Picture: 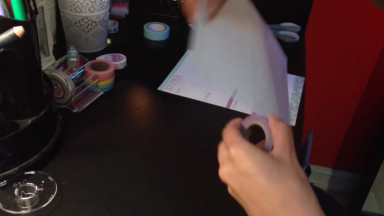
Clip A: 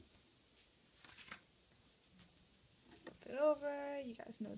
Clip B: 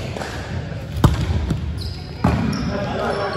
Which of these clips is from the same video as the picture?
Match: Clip A